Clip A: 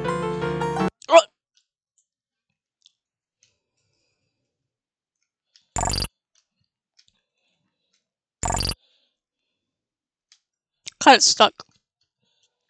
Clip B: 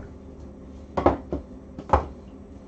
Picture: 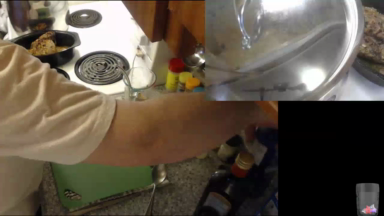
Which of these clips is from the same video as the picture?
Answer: B